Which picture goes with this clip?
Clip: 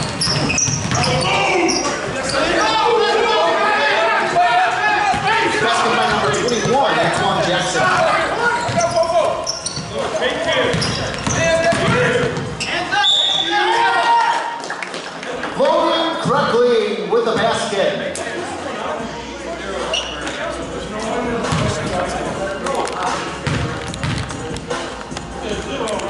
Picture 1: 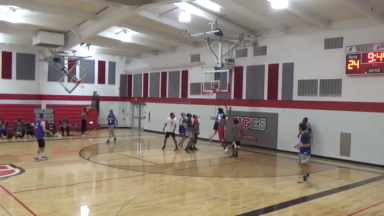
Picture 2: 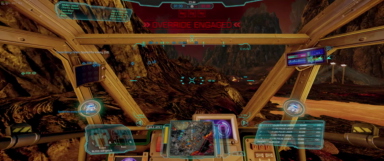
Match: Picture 1